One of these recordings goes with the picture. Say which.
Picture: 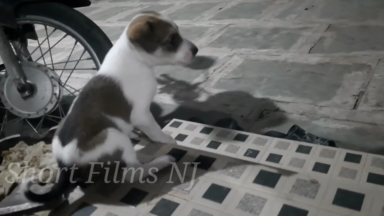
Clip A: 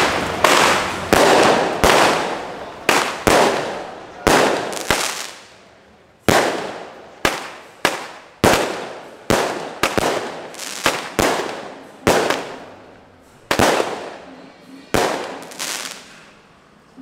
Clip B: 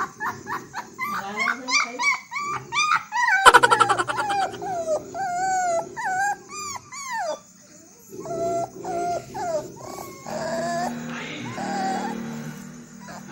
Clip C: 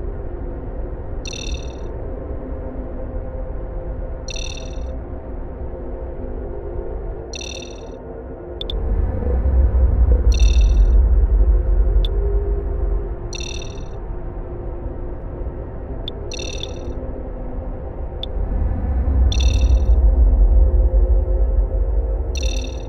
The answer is B